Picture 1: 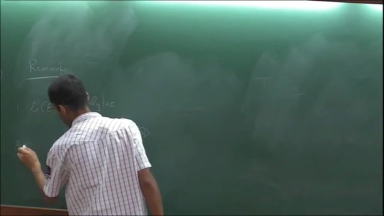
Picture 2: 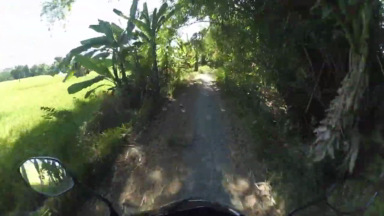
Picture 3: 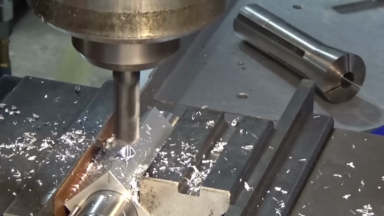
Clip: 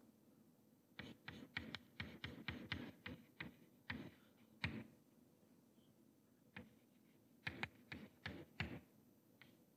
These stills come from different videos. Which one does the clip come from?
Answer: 1